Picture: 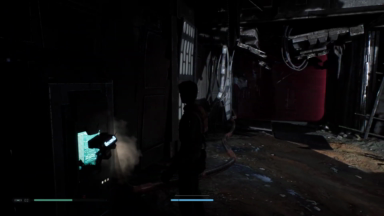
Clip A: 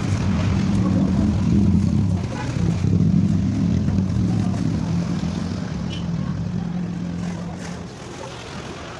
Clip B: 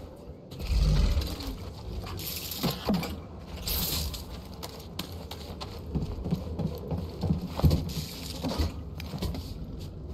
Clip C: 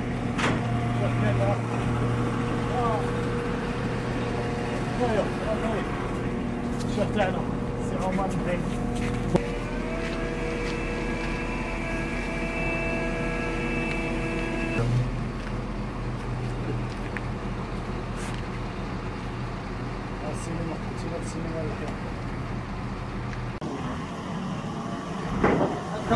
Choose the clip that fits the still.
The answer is B